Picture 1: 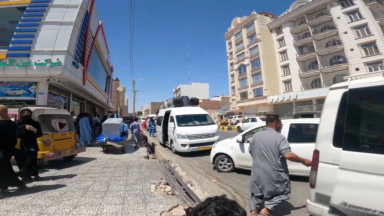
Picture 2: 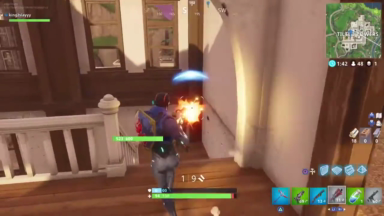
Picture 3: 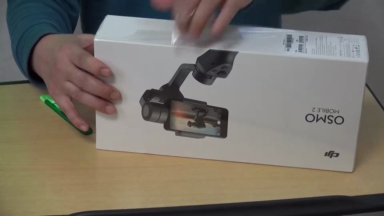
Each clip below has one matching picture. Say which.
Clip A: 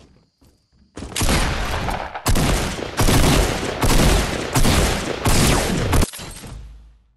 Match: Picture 2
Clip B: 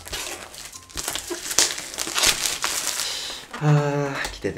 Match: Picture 3